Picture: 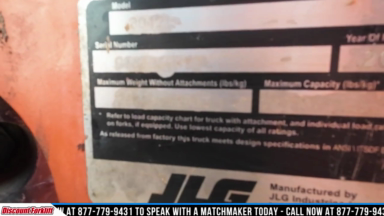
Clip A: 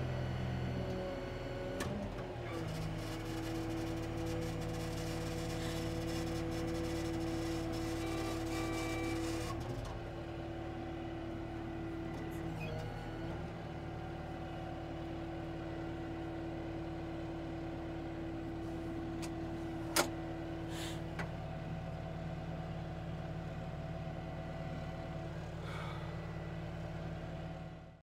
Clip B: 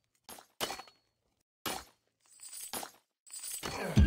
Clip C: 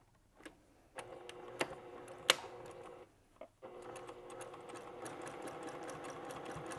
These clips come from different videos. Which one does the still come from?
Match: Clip A